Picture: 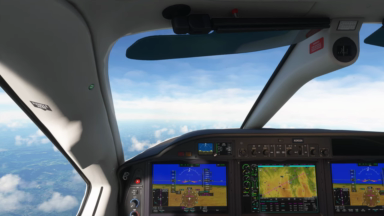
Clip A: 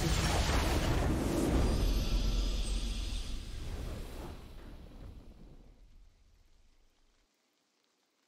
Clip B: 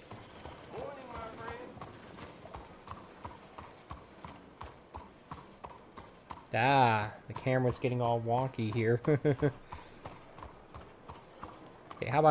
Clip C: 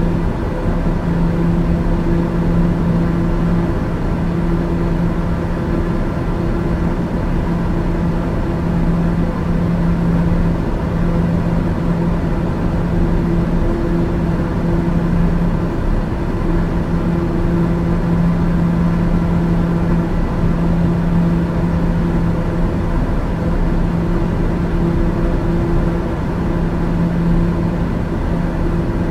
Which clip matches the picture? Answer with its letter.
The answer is C